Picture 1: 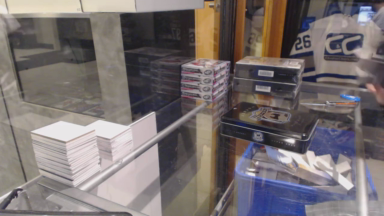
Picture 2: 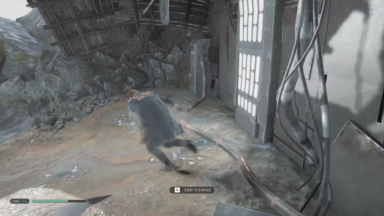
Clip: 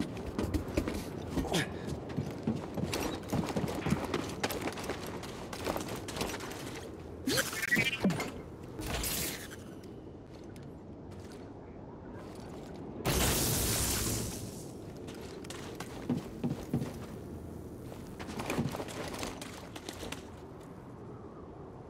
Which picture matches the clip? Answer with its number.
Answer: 2